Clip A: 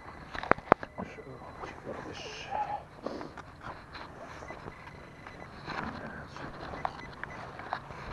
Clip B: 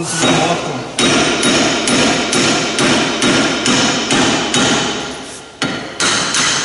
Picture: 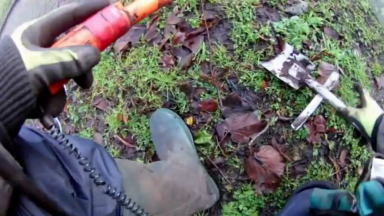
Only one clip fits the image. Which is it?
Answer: A